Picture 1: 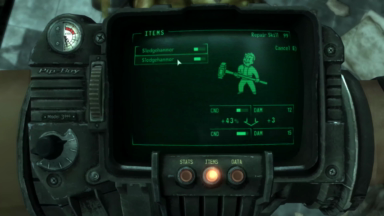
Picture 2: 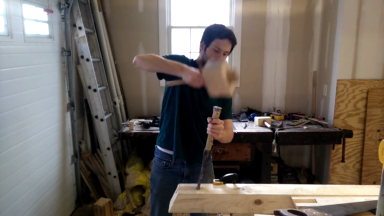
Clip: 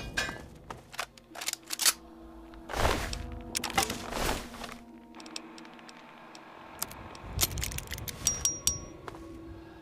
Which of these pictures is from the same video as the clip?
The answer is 1